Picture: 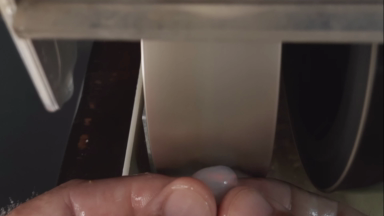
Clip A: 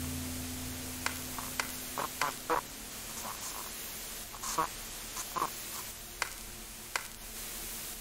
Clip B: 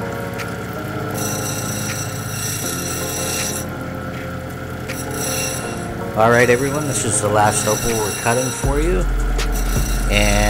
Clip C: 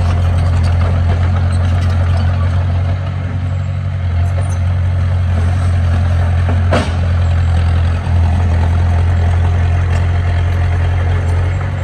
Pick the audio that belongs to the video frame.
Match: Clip B